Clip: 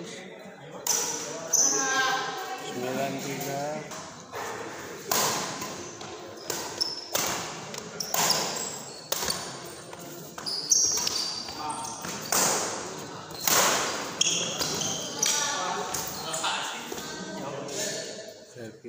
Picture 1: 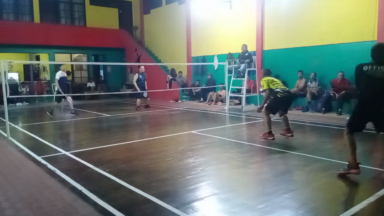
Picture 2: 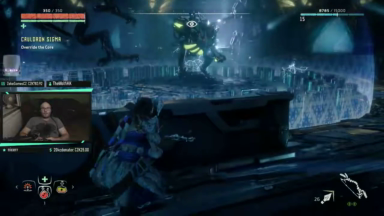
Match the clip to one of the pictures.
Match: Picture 1